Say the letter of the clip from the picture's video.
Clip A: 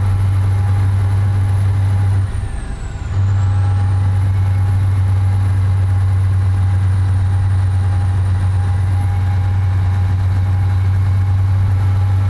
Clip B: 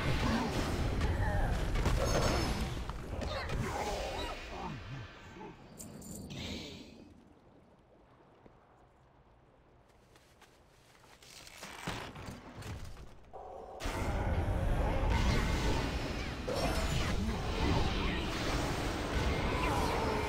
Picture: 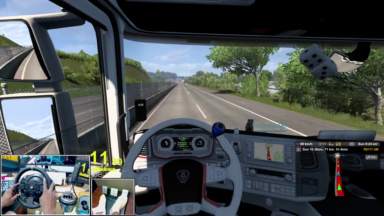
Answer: A